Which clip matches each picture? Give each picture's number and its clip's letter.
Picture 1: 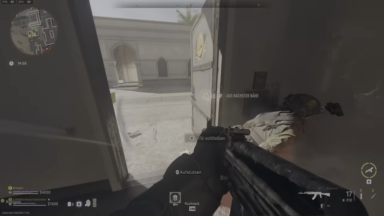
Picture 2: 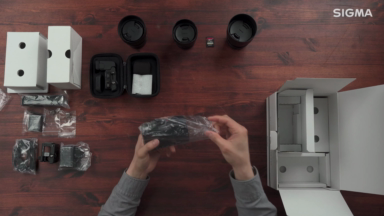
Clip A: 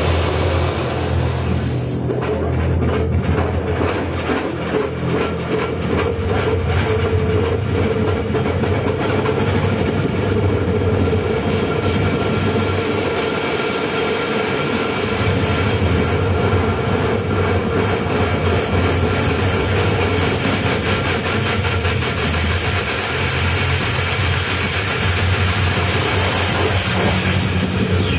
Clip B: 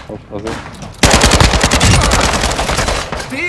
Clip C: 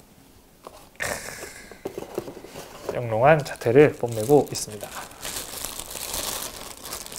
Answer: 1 B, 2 C